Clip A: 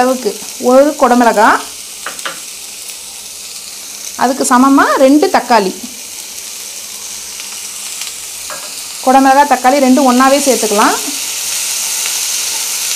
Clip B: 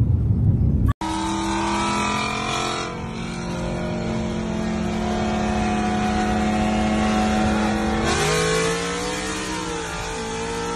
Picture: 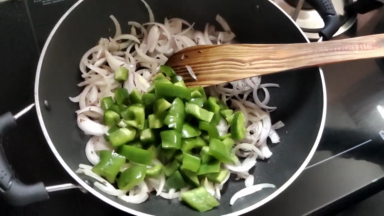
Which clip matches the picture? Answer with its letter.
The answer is A